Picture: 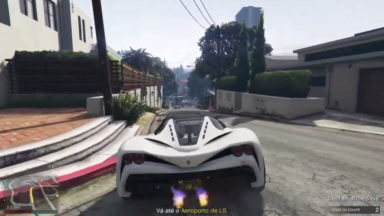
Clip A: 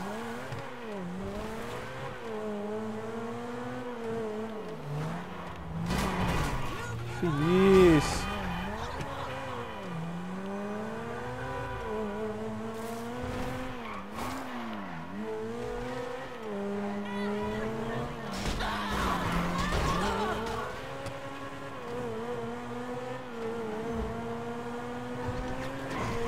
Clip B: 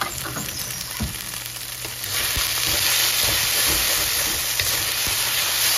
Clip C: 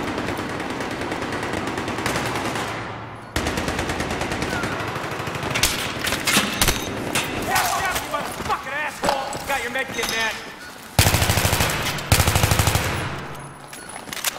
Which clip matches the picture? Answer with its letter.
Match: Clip A